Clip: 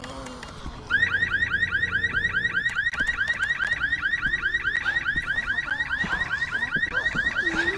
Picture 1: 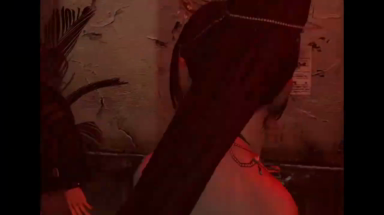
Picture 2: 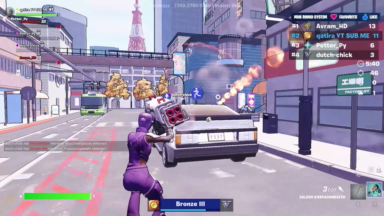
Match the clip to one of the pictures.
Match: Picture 1